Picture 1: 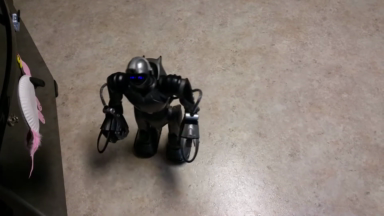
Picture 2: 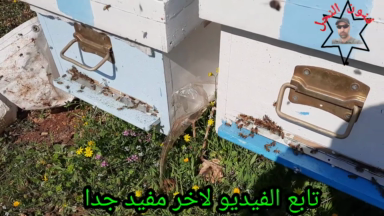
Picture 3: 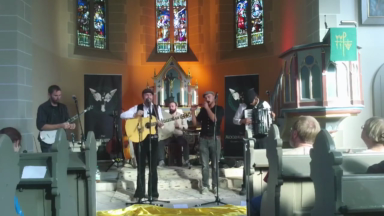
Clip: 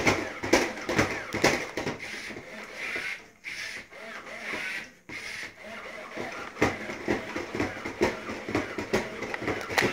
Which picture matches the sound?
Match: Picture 1